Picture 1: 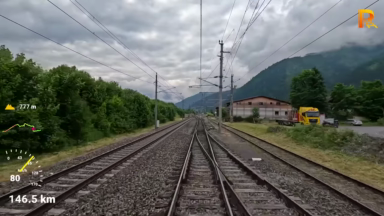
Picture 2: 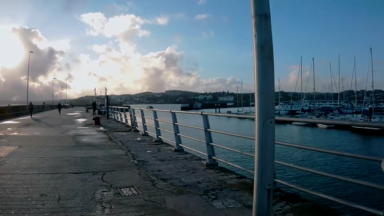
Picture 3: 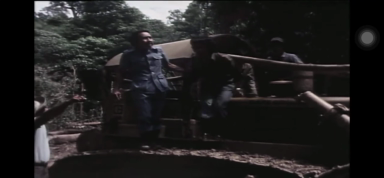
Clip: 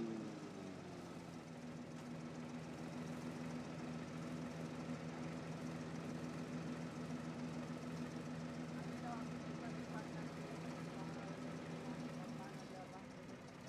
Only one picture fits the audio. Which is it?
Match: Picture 3